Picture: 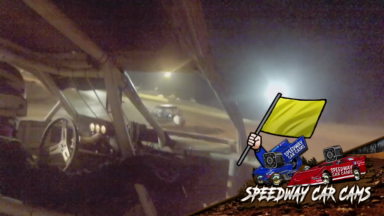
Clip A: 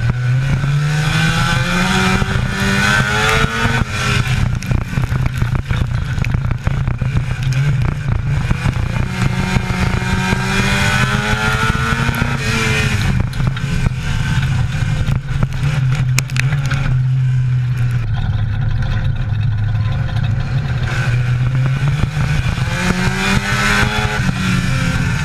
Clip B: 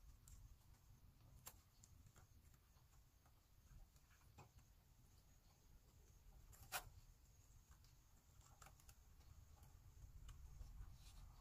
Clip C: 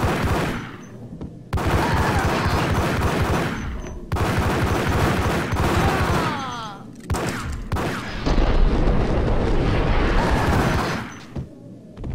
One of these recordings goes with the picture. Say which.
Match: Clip A